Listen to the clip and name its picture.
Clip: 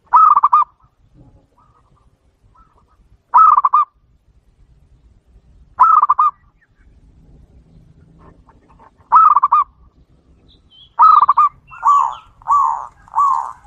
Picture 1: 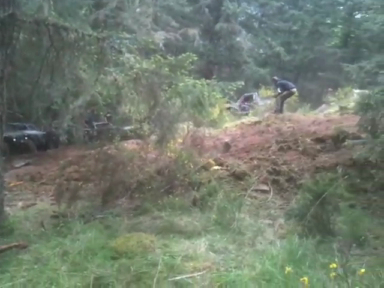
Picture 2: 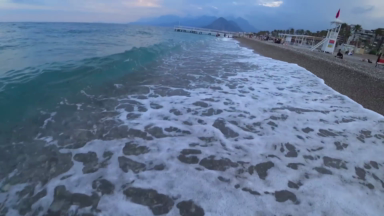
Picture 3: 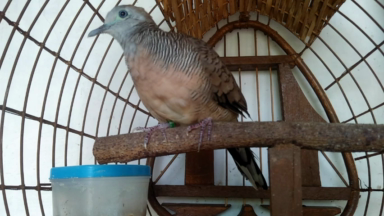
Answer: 3